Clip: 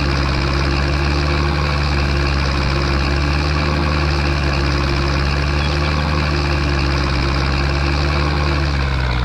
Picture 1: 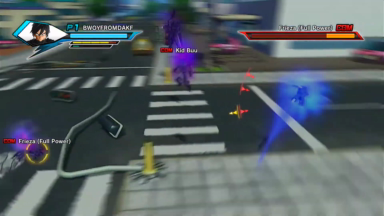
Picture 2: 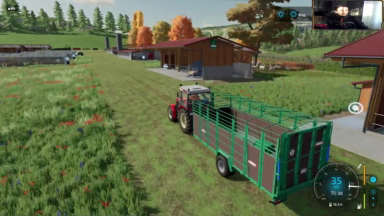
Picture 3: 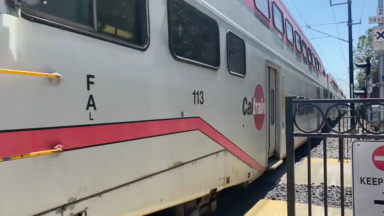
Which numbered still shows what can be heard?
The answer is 2